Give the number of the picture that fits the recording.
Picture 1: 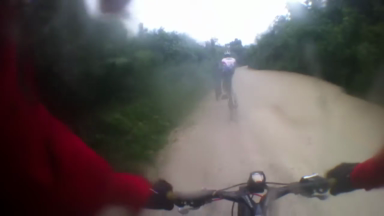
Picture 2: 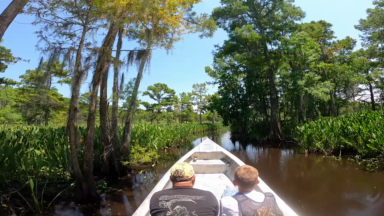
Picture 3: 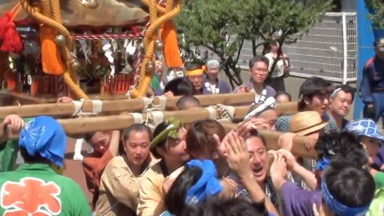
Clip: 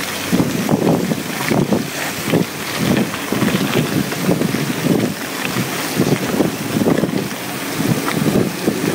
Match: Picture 1